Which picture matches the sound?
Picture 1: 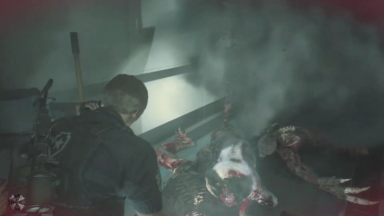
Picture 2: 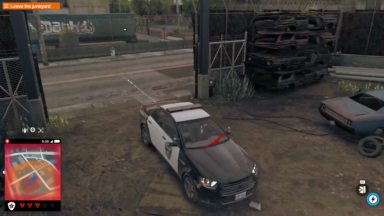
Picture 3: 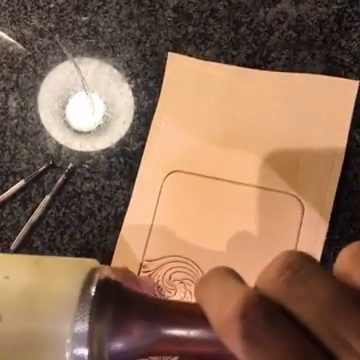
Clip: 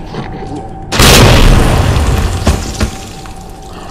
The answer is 1